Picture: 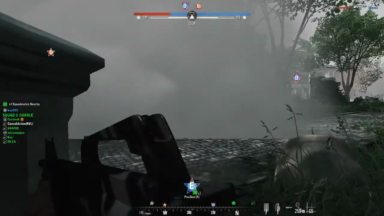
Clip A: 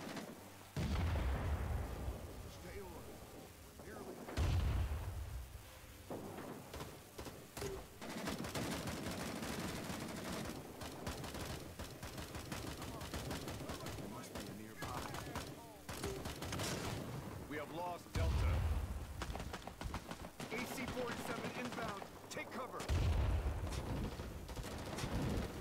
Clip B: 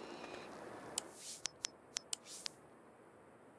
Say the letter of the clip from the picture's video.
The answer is A